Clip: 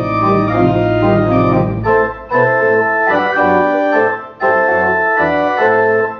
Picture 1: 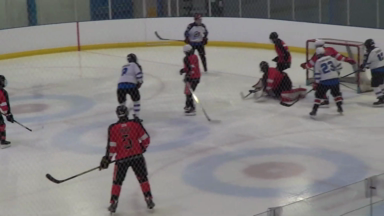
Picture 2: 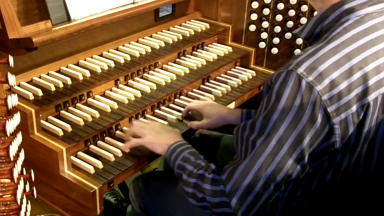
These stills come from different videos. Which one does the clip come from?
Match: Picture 2